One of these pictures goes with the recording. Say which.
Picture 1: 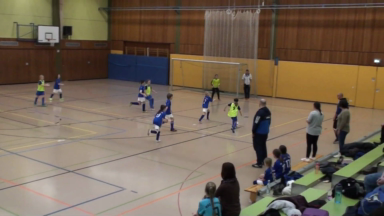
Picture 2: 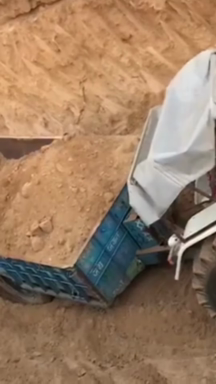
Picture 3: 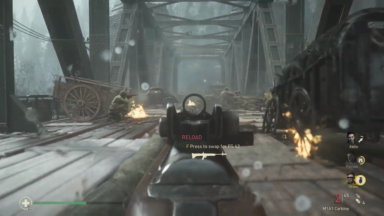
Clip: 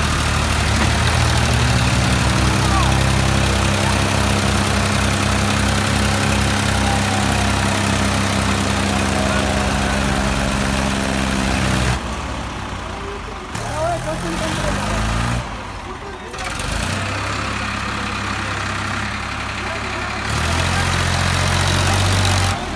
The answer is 2